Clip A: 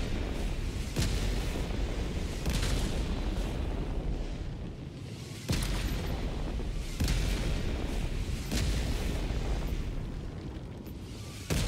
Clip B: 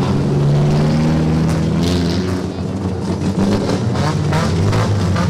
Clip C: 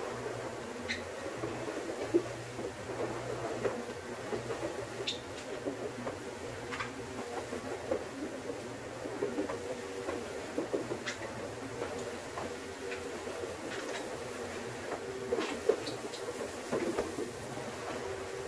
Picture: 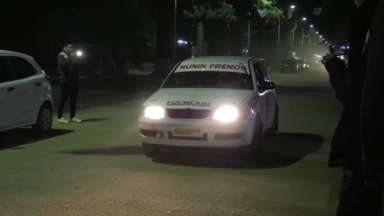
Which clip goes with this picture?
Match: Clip B